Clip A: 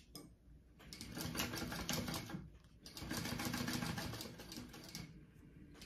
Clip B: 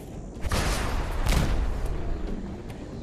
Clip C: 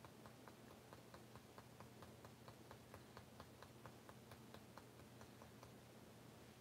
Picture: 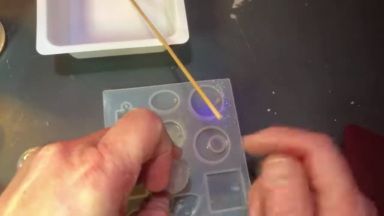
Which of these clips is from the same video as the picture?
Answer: C